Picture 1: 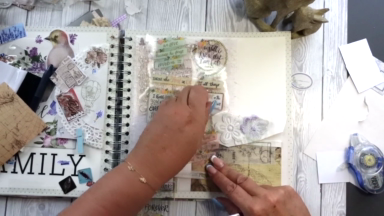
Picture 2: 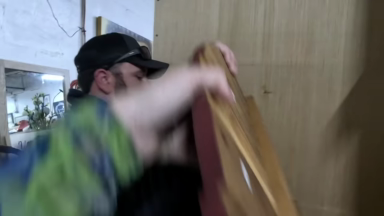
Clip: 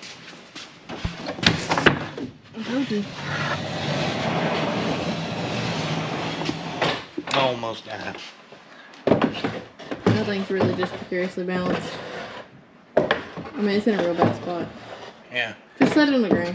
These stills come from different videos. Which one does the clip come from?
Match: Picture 2